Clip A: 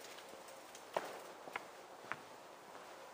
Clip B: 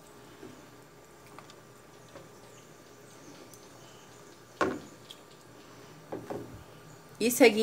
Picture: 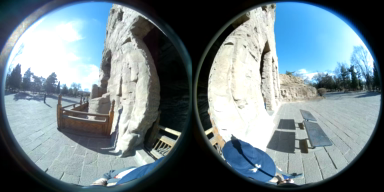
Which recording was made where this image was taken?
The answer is A